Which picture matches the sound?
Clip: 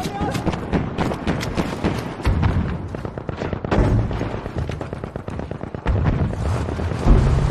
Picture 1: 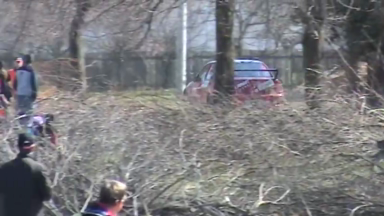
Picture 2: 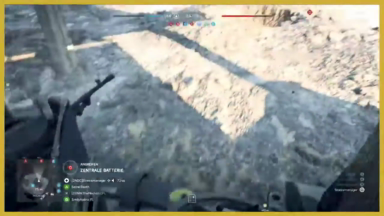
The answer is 2